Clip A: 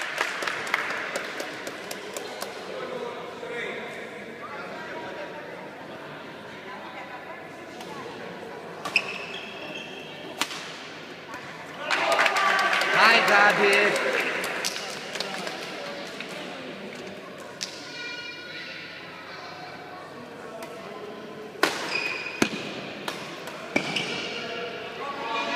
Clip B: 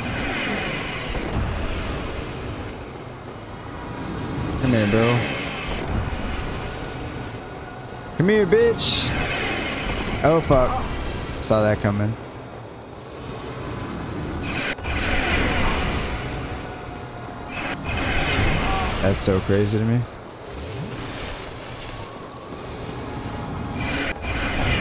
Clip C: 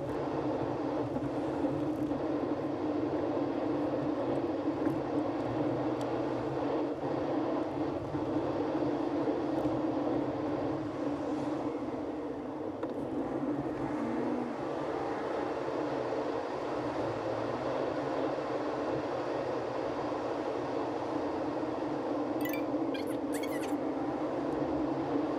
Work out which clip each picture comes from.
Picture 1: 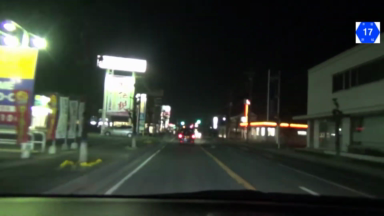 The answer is C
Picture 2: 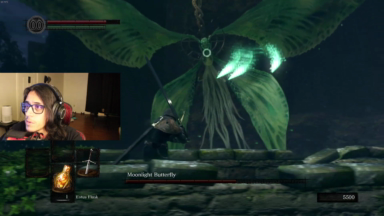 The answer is B